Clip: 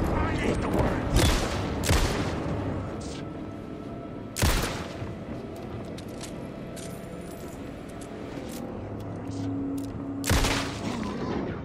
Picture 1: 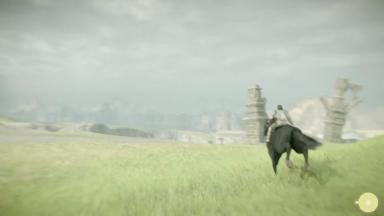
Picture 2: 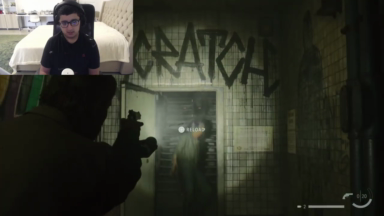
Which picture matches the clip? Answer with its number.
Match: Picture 2